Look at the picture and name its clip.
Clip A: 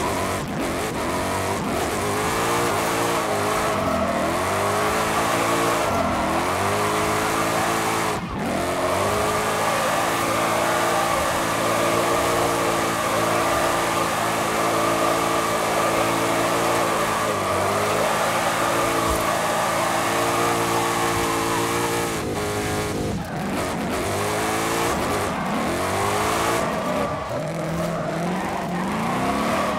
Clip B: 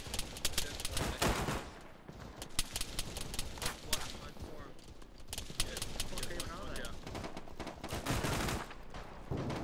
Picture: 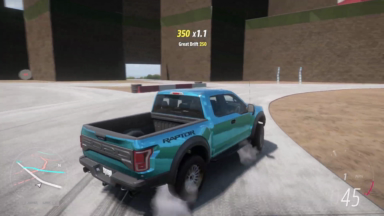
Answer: A